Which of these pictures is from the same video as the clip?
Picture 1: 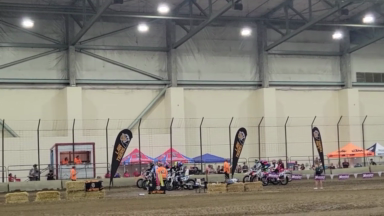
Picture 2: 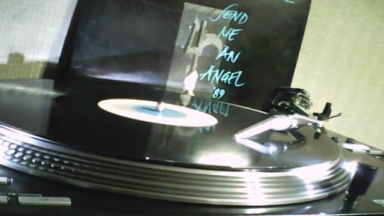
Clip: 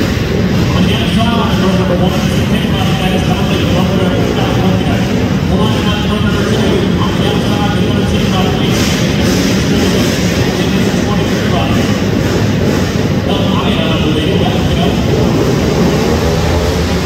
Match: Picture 1